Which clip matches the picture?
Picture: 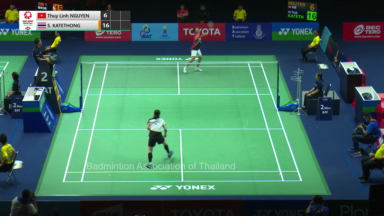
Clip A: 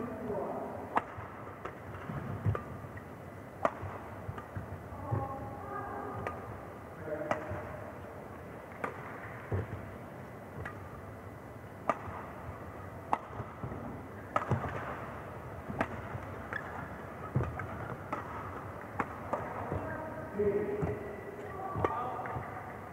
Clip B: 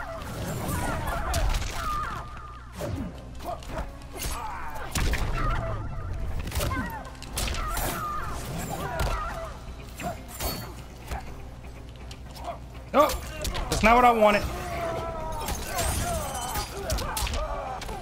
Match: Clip A